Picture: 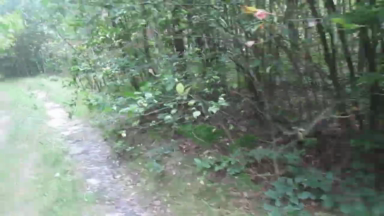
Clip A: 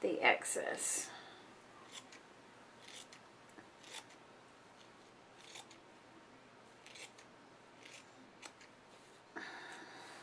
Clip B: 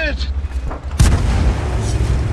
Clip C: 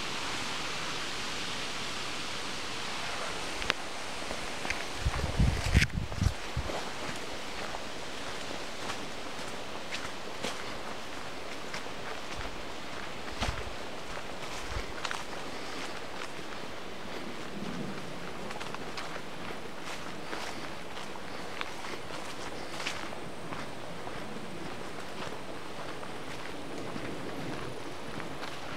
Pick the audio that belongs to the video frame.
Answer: C